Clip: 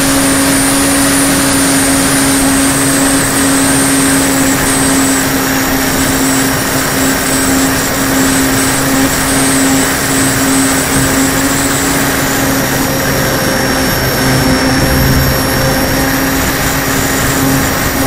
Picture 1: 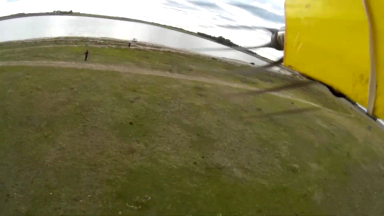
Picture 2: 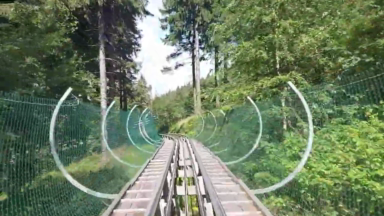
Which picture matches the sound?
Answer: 1